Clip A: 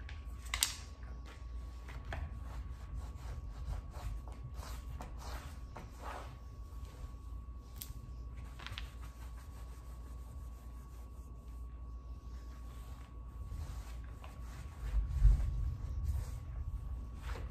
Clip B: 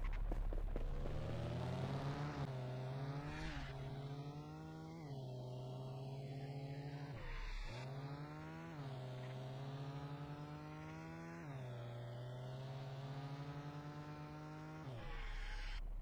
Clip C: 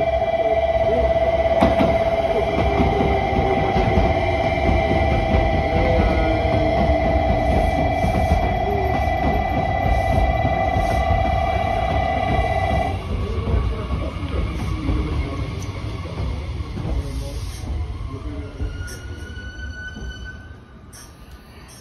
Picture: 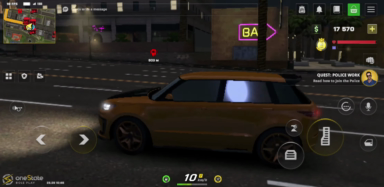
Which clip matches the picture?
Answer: B